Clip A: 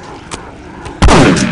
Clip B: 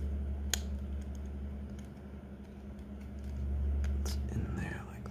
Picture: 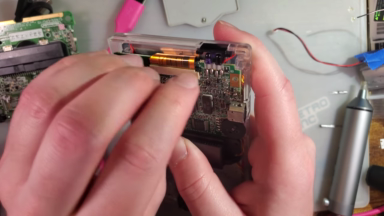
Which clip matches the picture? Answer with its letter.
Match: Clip B